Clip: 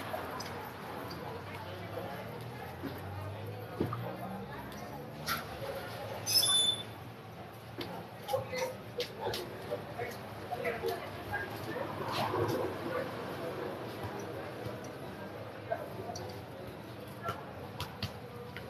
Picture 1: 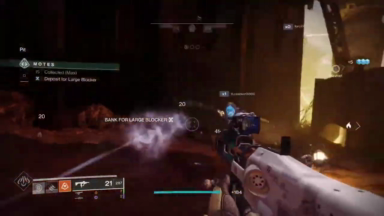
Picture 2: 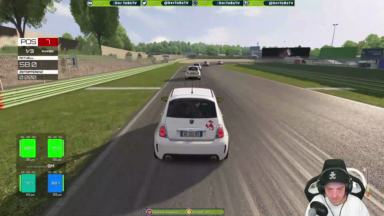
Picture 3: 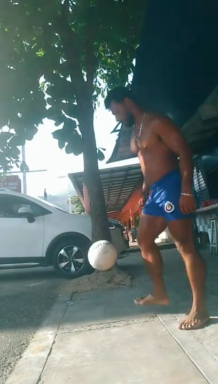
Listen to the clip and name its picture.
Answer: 3